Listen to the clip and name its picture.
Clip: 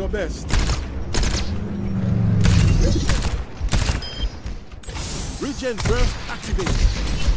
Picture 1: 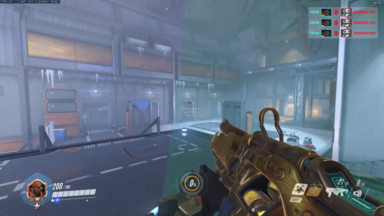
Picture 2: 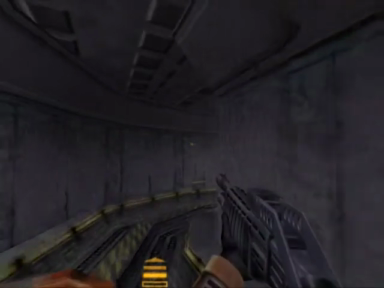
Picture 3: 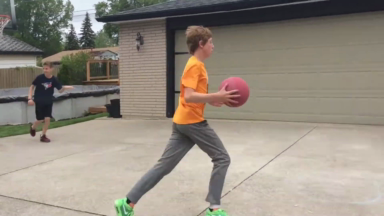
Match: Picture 1